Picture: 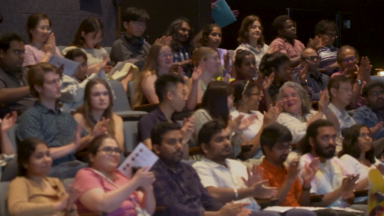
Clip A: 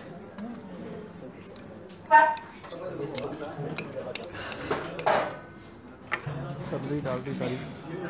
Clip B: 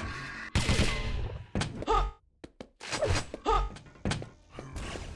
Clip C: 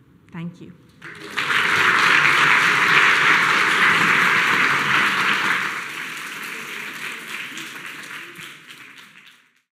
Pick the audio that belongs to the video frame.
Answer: C